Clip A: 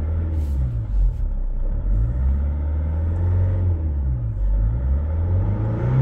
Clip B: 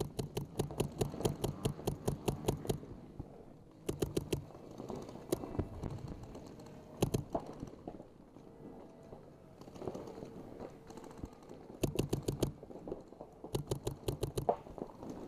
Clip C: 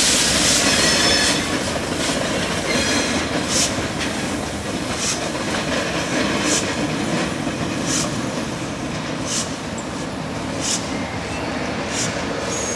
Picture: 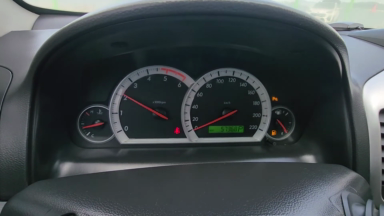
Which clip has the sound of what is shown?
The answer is A